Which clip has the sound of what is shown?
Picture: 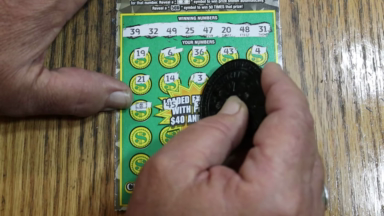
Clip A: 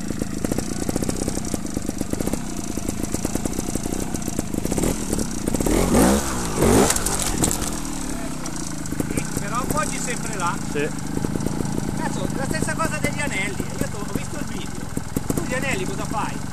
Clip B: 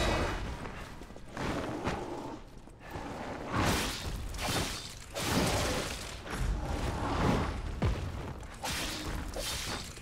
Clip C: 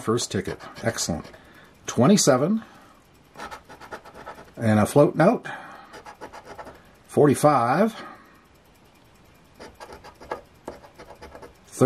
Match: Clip C